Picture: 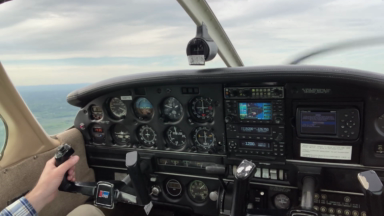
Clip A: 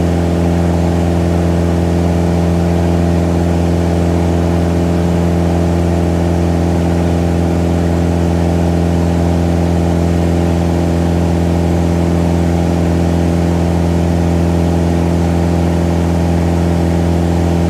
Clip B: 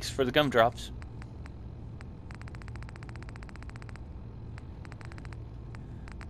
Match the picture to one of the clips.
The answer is A